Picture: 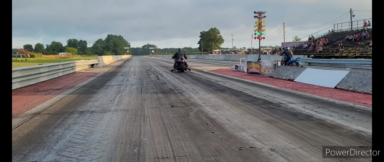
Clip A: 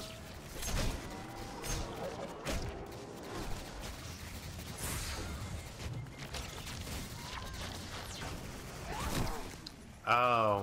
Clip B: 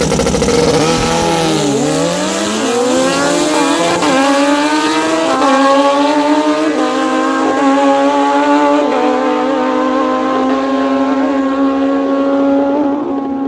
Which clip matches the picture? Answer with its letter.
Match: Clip B